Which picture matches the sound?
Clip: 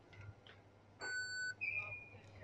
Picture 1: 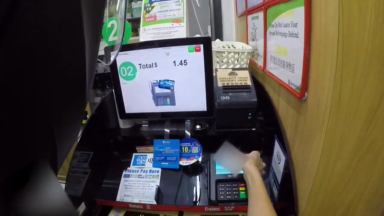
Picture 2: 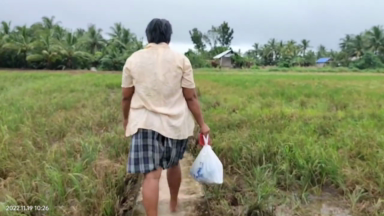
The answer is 1